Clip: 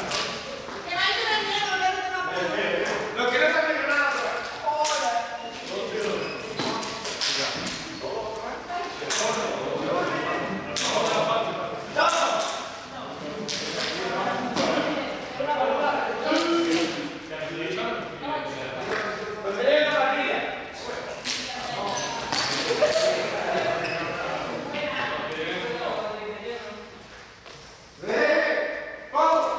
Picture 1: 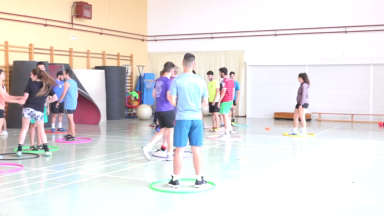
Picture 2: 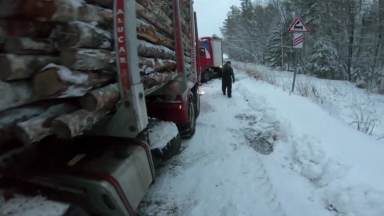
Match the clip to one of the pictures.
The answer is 1